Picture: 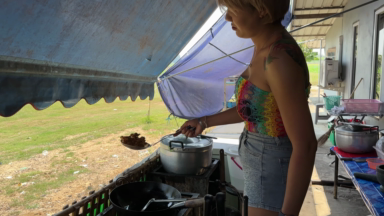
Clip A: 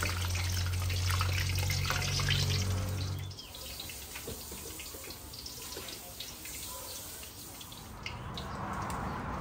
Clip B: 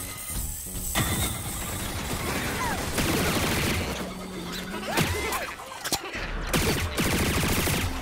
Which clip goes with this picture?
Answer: A